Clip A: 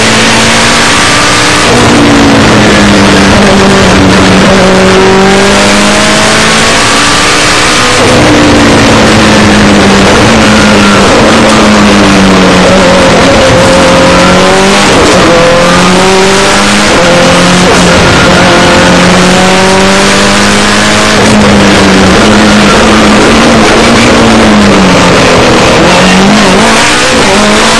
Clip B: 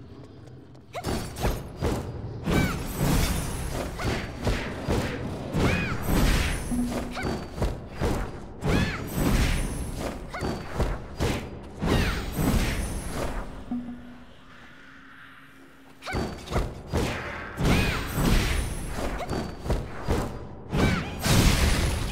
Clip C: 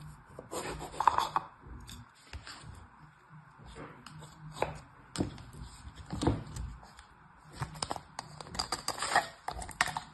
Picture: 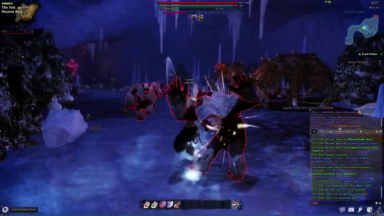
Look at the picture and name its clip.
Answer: B